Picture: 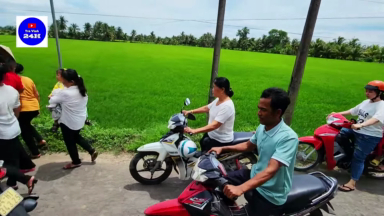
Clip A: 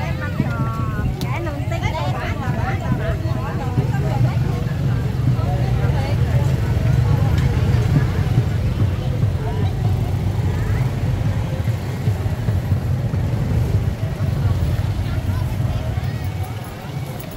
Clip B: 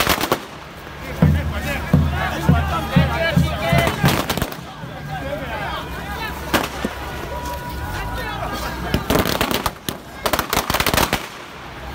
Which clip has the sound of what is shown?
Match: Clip A